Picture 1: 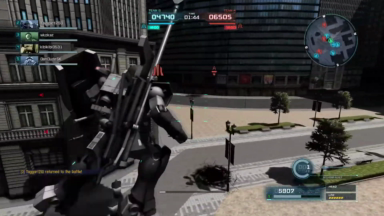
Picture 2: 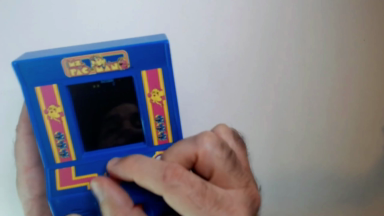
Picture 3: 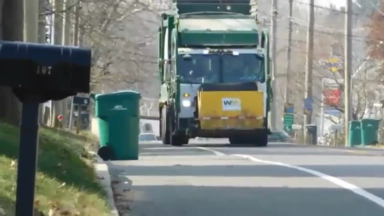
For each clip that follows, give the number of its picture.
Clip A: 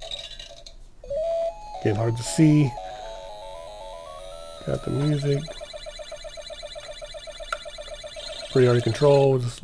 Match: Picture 2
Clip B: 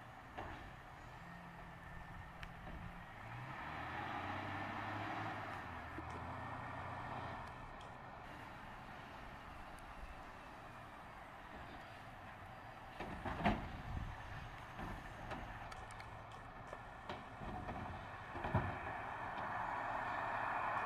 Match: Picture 3